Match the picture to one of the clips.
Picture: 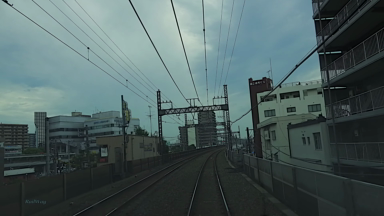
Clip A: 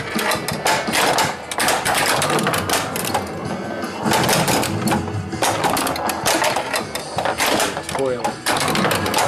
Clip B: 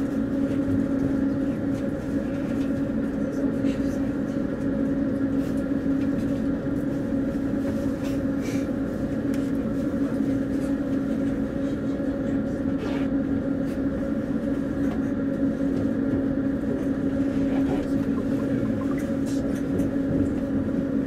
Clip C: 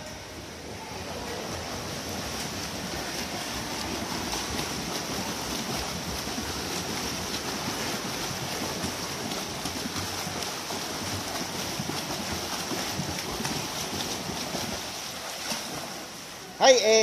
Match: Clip B